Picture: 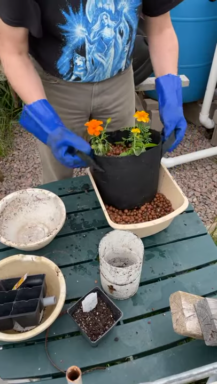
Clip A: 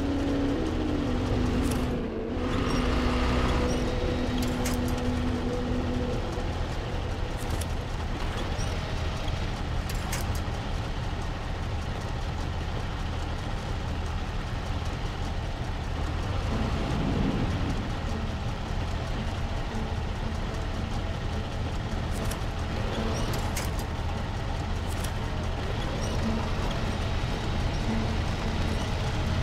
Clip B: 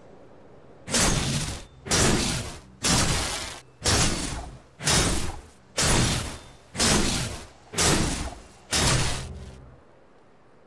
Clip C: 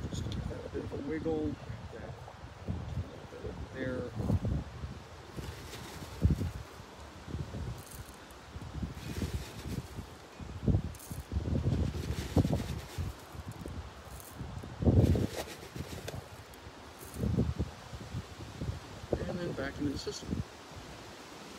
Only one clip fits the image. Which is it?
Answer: C